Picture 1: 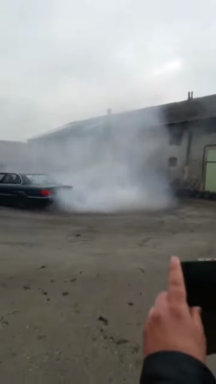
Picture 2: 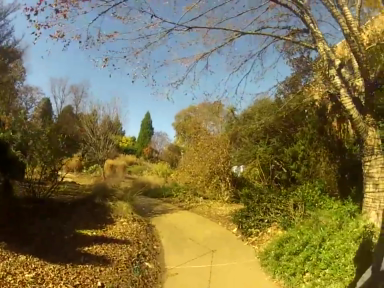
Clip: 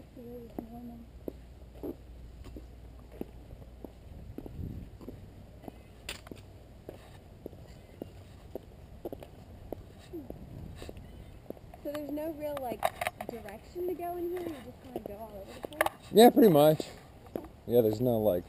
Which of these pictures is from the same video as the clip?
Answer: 2